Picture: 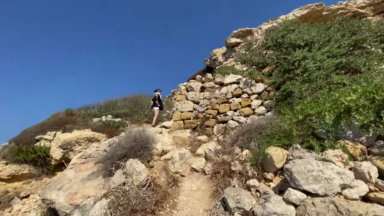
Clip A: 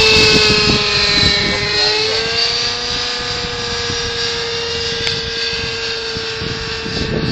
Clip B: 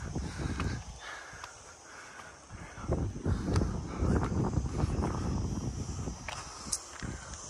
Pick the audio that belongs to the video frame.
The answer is B